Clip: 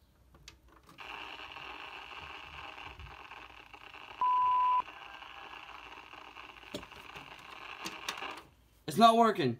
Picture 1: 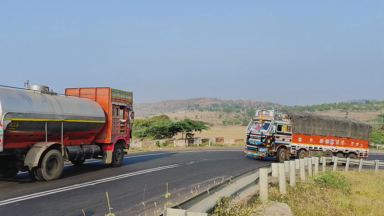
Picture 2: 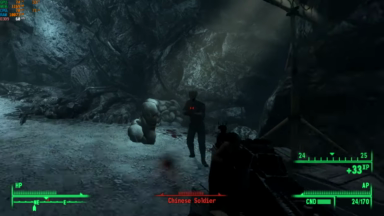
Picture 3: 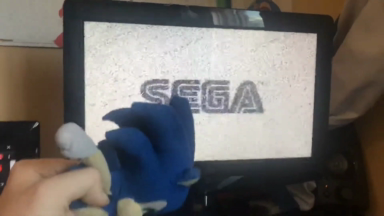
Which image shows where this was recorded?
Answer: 3